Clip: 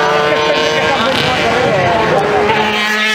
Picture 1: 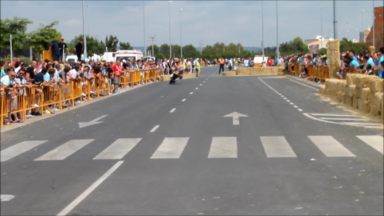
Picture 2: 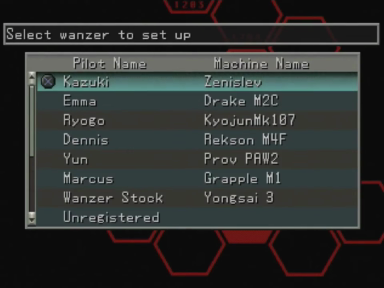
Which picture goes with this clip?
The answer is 1